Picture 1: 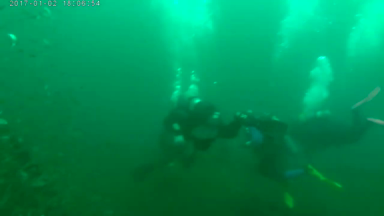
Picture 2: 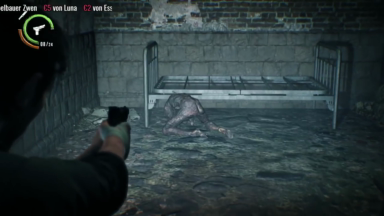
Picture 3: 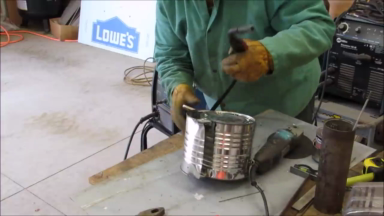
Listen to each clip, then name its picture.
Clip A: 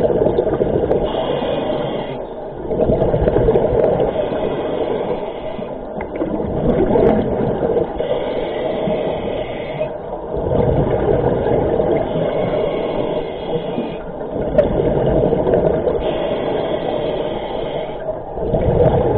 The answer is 1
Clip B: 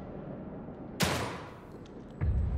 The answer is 2